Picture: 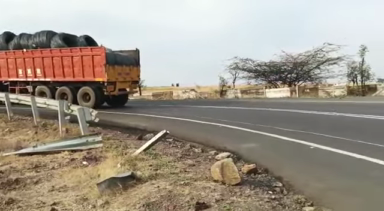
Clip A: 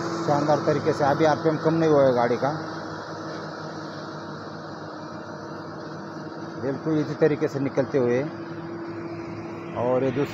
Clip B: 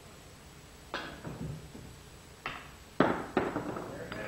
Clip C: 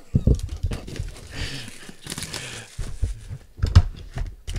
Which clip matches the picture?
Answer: A